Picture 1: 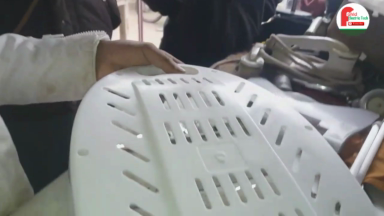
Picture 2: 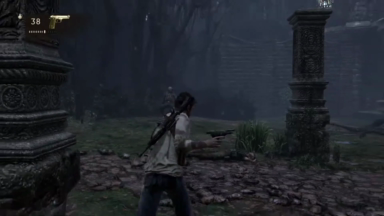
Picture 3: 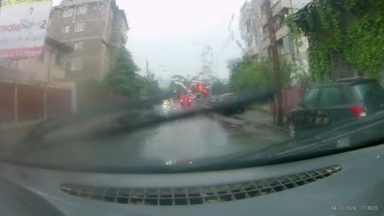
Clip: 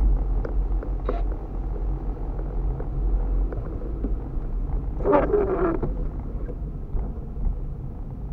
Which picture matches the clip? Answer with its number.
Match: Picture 3